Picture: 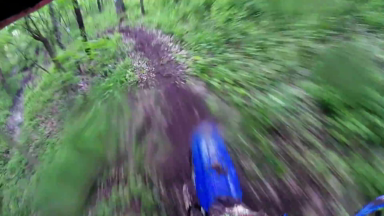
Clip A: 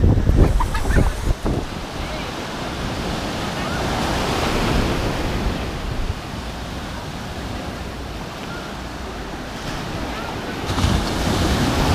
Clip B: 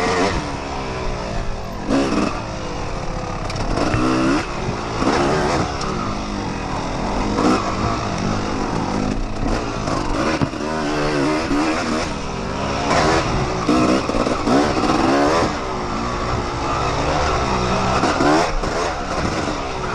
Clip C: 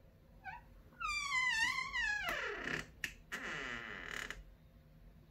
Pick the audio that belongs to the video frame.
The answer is B